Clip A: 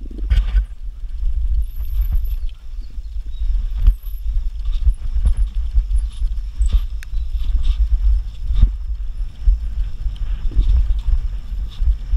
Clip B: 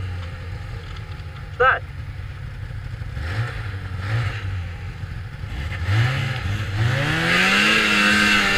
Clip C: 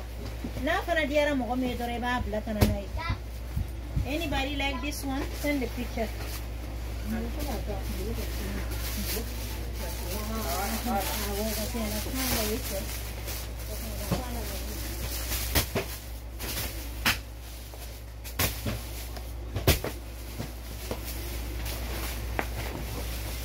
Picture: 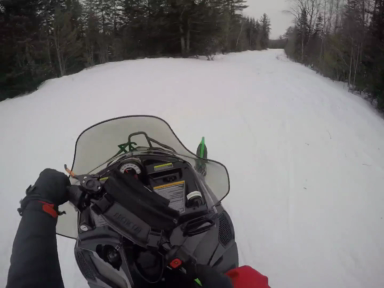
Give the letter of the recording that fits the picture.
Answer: B